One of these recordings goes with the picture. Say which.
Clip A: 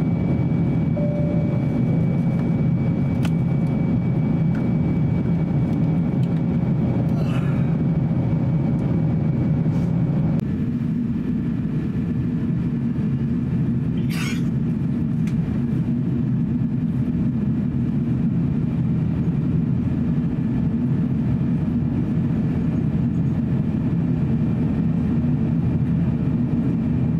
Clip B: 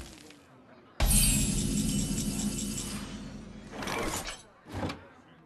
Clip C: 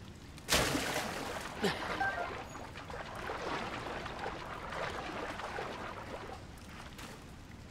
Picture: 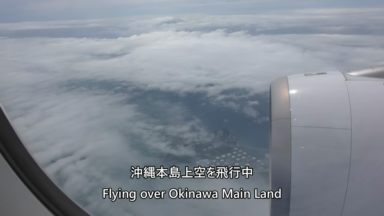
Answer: A